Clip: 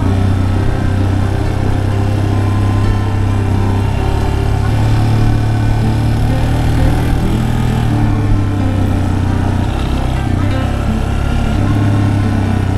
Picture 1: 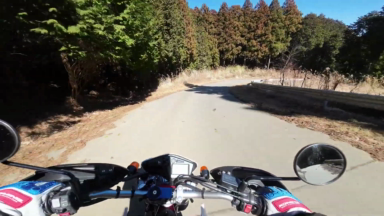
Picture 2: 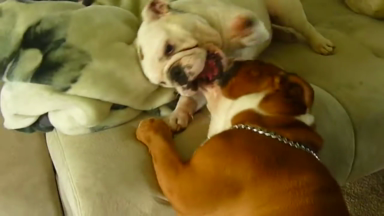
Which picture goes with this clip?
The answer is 1